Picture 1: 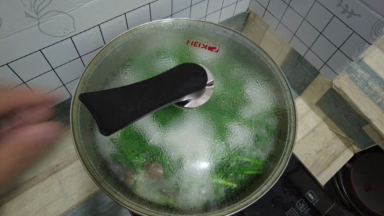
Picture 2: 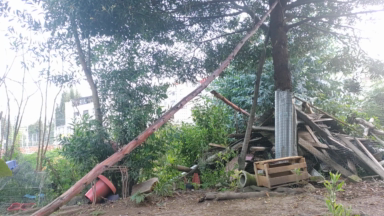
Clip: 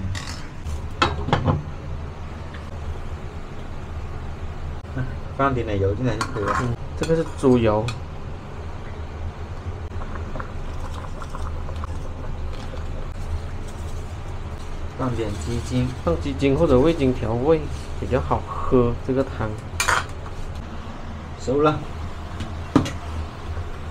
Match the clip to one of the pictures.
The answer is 1